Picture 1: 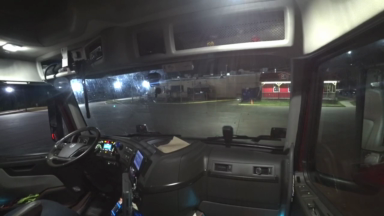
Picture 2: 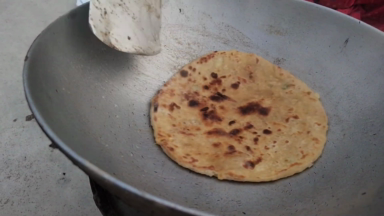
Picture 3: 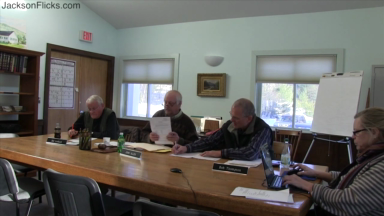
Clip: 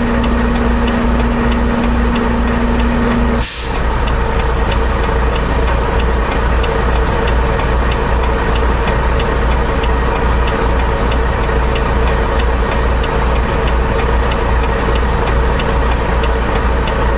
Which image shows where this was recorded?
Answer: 1